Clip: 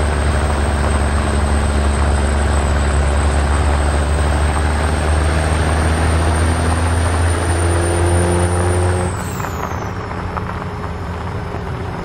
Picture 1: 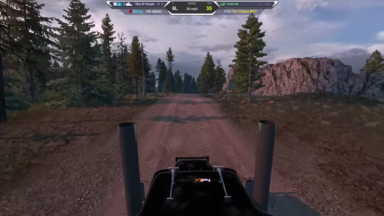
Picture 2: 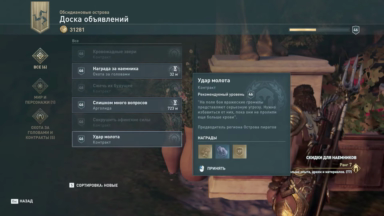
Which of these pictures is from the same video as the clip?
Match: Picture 1